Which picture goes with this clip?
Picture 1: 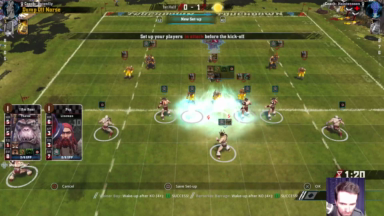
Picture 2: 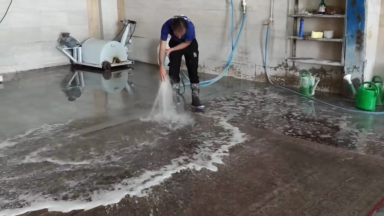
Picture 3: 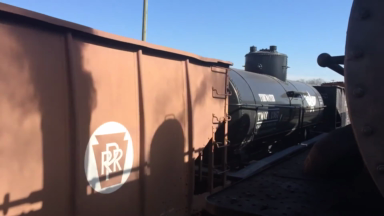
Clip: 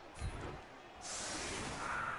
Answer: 1